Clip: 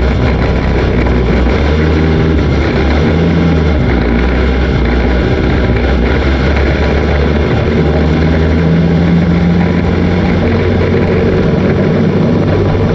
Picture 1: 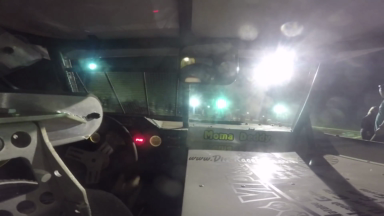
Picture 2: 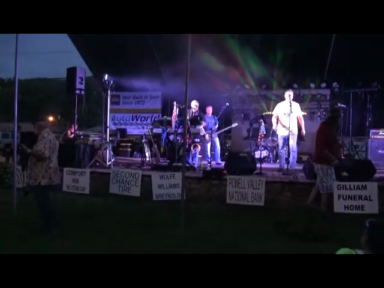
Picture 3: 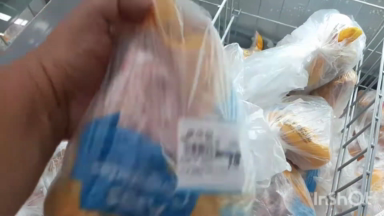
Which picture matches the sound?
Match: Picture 1